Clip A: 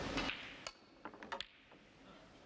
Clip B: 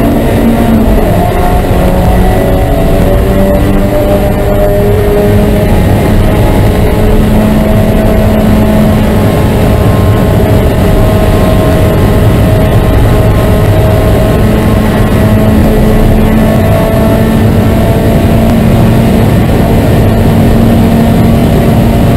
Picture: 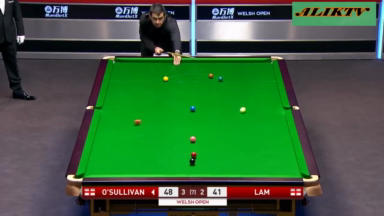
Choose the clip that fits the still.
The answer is A